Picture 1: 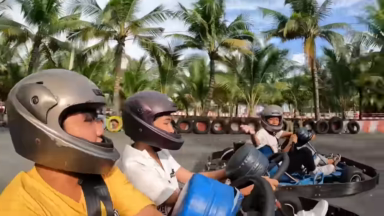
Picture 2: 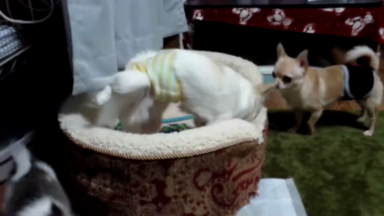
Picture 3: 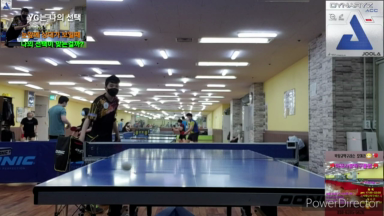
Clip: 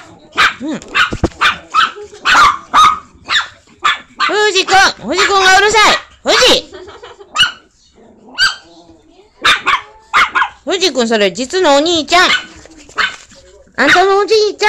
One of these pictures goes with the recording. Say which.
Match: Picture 2